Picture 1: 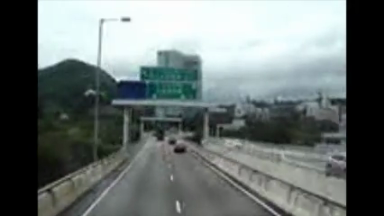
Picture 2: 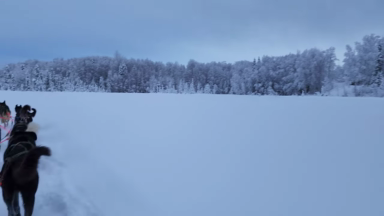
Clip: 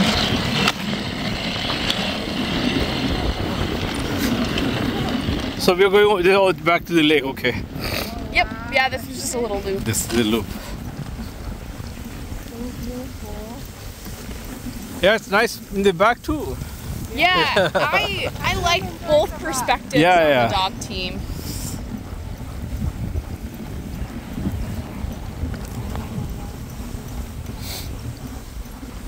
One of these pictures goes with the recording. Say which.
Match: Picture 2